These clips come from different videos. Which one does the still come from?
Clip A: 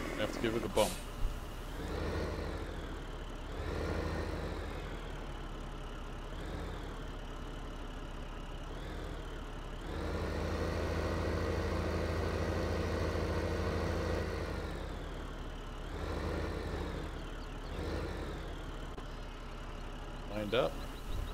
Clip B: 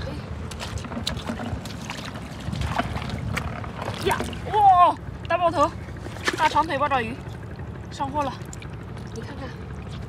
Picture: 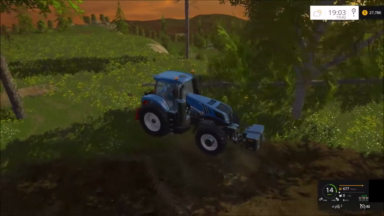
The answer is A